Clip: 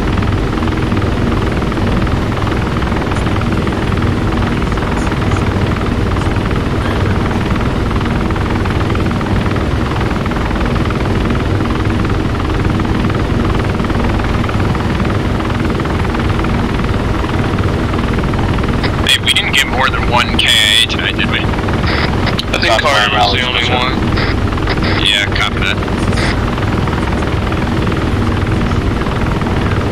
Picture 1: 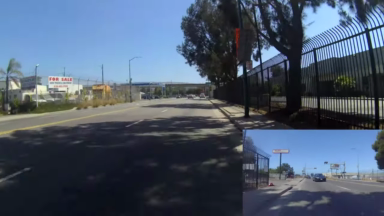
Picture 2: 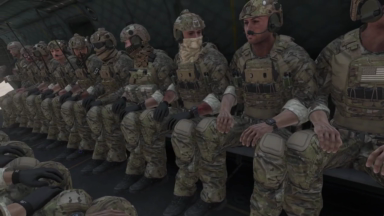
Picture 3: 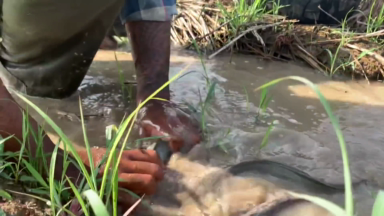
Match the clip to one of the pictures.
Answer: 2